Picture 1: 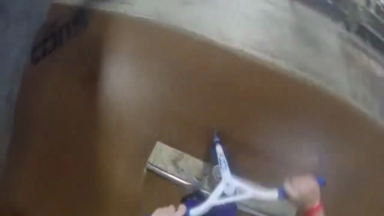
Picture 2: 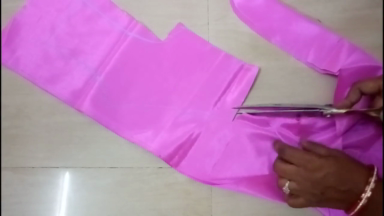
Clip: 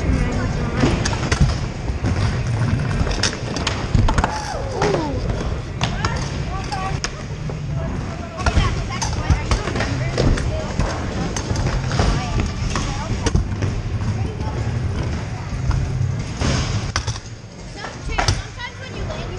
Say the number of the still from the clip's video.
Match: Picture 1